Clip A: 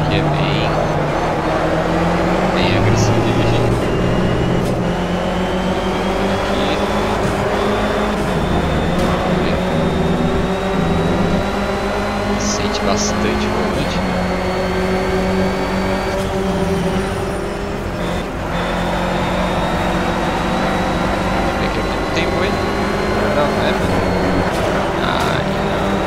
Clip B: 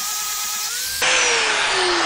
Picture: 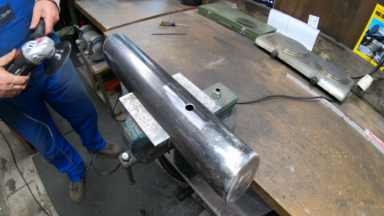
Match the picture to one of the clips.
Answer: B